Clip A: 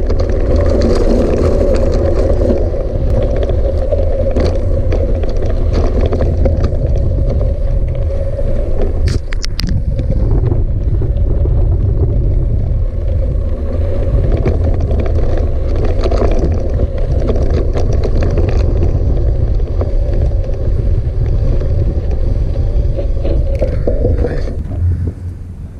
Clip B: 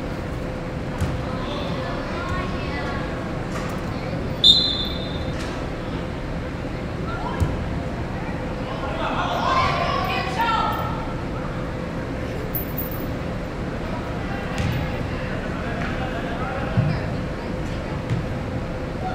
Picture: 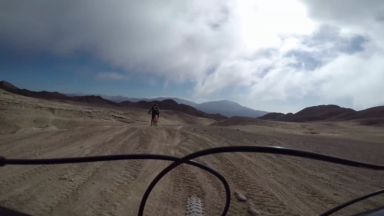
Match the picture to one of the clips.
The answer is A